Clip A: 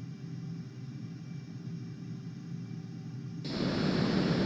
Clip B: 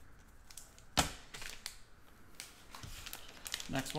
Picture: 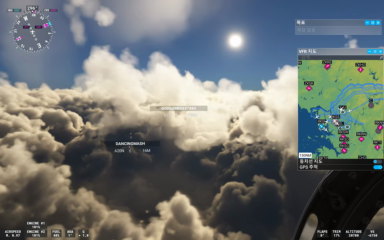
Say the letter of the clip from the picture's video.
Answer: A